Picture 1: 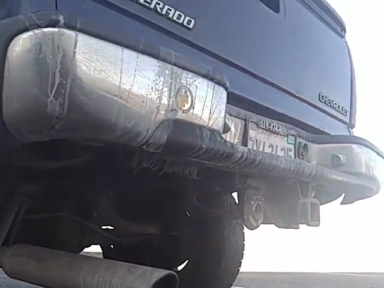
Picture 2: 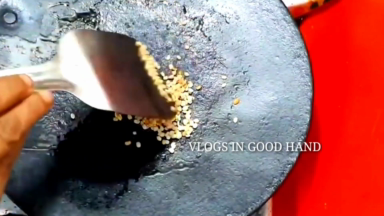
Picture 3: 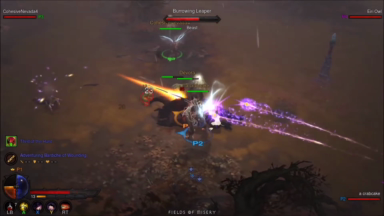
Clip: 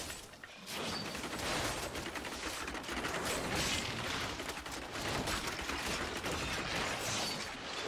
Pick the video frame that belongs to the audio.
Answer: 3